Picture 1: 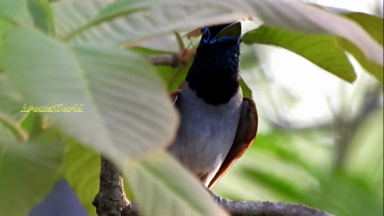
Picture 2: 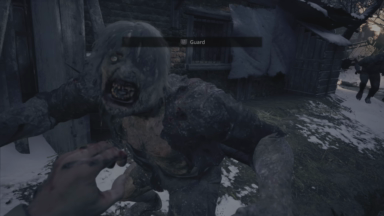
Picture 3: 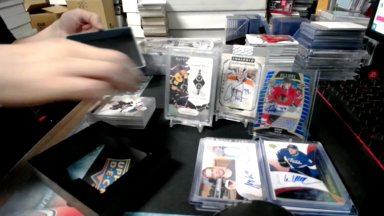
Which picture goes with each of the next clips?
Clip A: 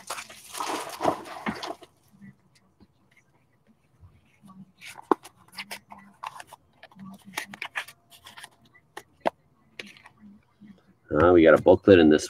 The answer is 3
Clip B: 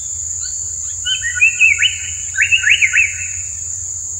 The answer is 1